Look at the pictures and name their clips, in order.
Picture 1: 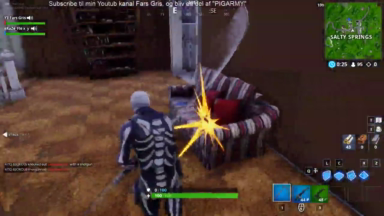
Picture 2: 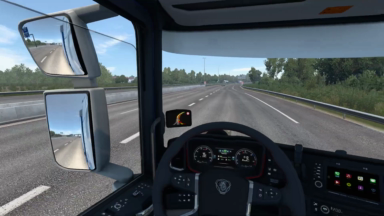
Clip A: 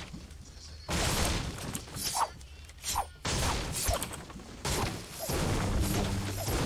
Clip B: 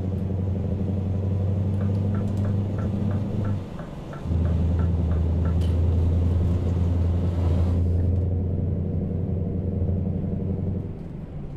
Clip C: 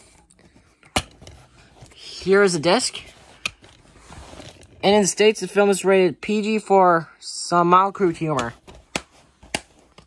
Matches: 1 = A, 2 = B